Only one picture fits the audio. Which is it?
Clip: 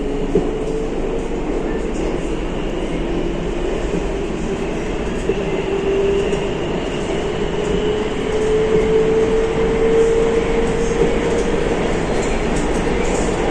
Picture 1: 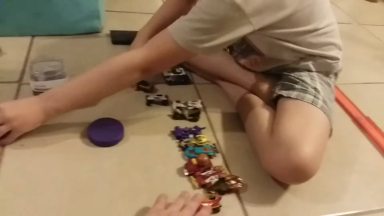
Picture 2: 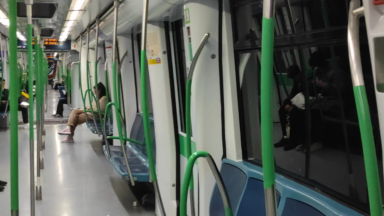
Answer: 2